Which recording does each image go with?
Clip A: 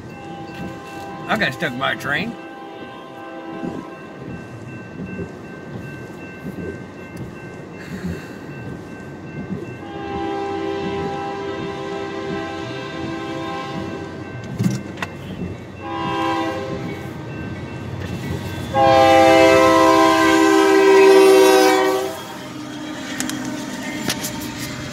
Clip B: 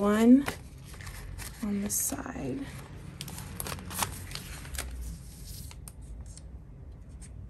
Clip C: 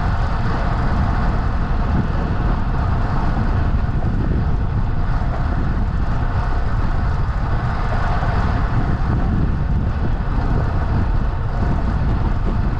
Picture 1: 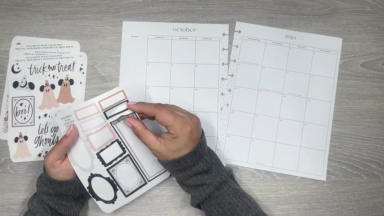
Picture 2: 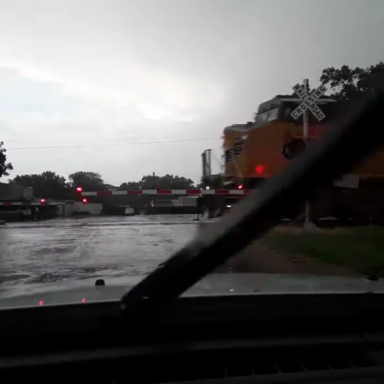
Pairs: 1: B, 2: A